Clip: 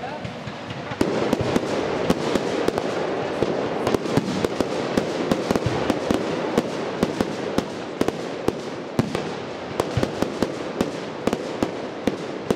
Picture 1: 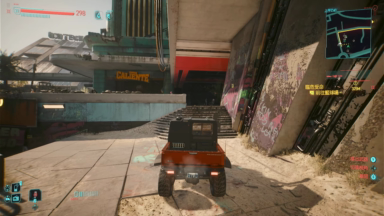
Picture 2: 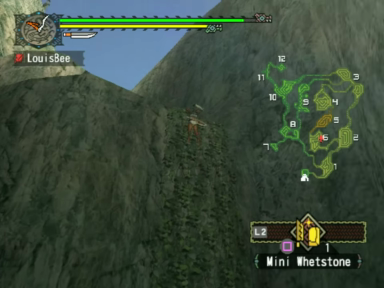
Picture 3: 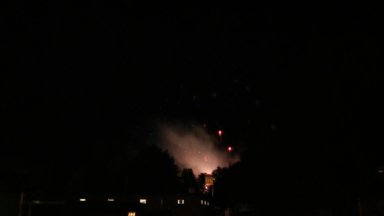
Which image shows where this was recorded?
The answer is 3